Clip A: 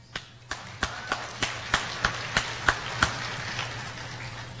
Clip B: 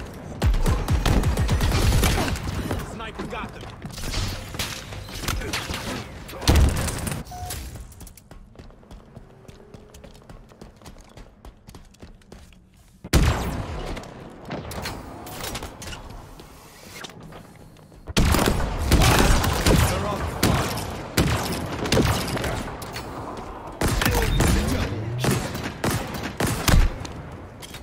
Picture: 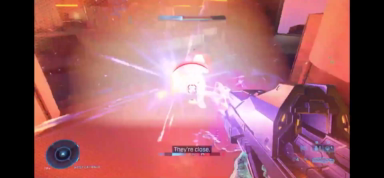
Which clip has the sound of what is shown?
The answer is B